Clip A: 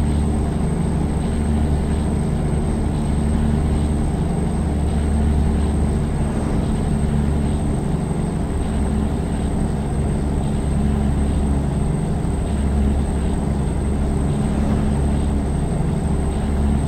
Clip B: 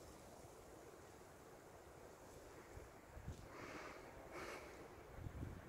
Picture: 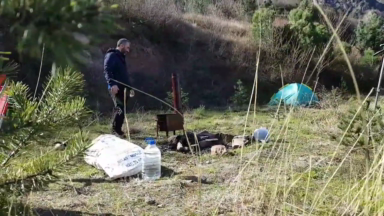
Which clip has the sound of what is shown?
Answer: B